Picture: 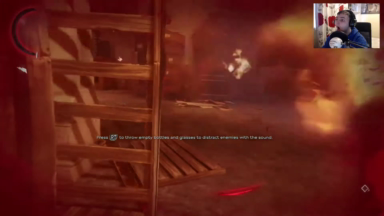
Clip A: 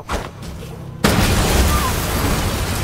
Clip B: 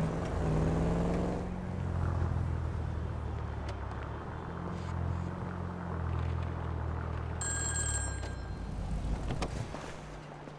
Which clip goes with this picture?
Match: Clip A